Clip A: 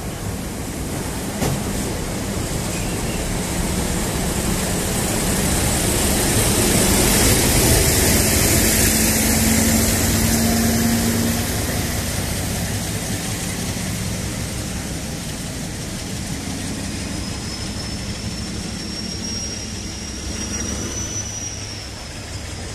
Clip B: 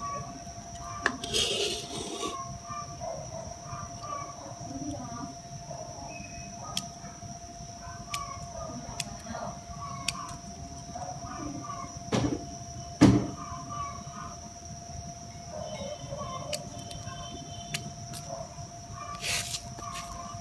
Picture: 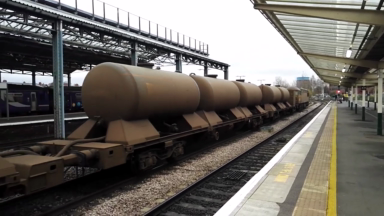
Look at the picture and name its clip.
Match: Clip A